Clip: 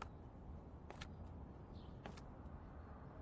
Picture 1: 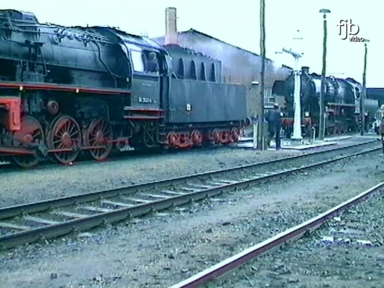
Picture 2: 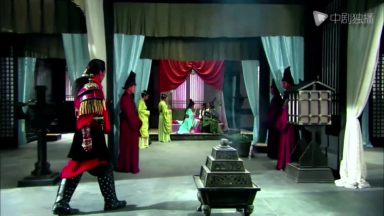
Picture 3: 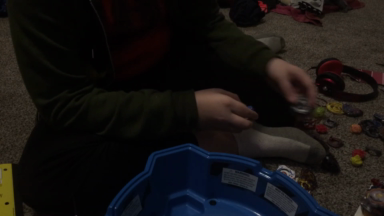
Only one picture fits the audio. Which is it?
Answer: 2